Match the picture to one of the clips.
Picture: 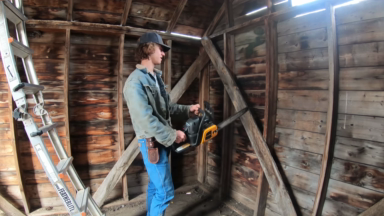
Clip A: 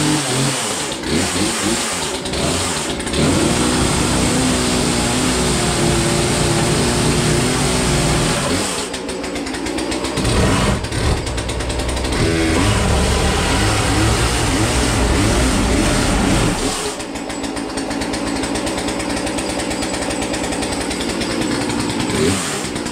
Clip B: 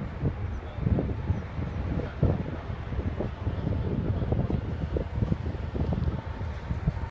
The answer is A